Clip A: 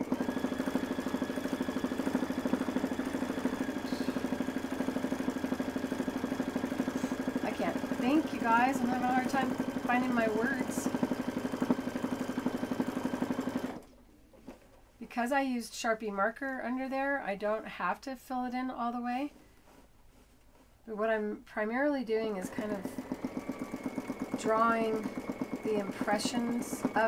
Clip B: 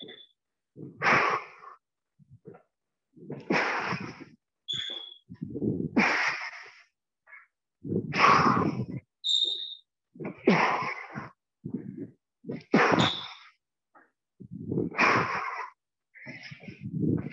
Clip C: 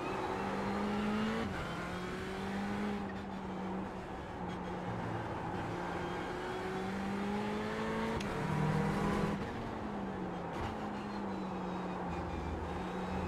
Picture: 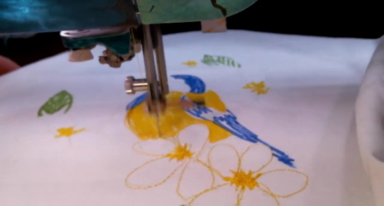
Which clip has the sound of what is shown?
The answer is A